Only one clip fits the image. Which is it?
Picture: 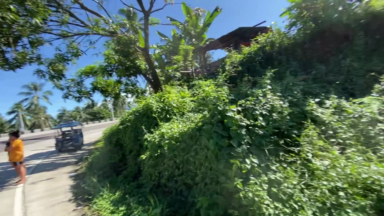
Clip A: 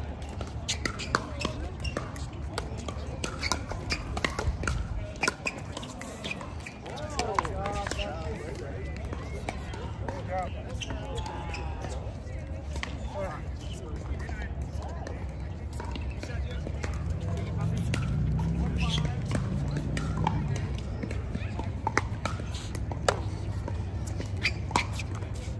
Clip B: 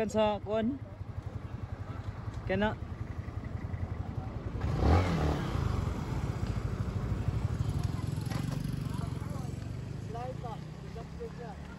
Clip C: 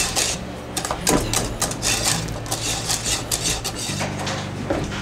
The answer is B